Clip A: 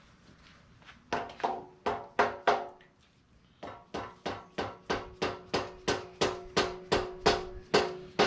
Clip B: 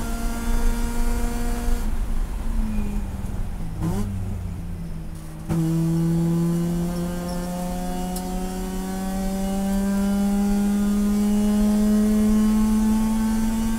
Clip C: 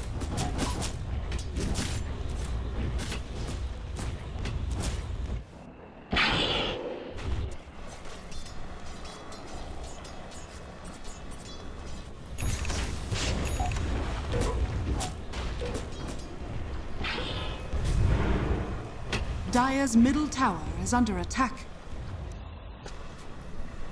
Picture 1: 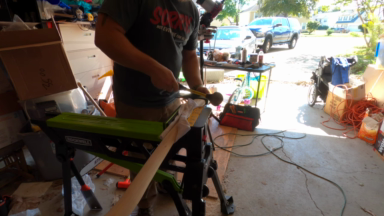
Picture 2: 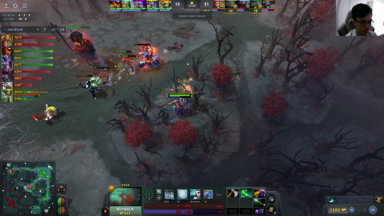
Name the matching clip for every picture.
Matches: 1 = A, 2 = C